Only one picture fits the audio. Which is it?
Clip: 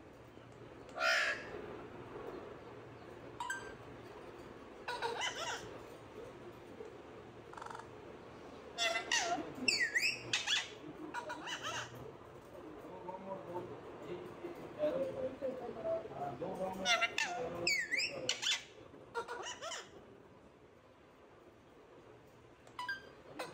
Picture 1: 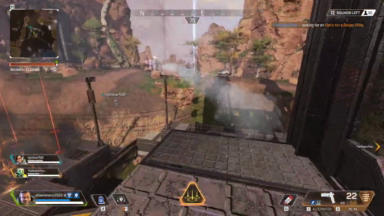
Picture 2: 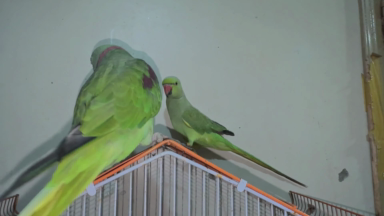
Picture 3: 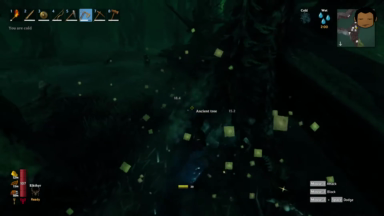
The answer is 2